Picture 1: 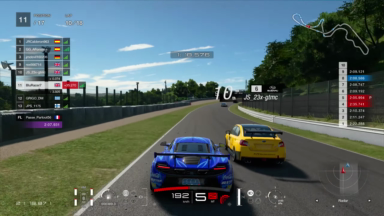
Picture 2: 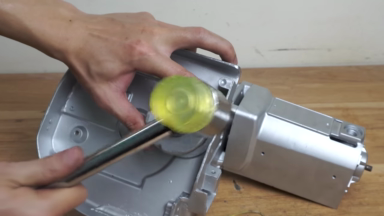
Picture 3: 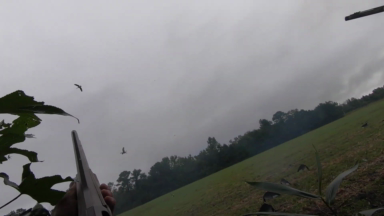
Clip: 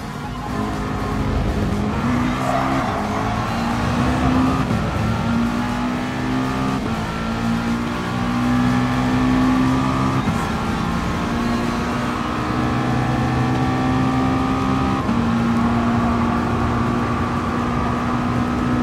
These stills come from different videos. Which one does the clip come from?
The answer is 1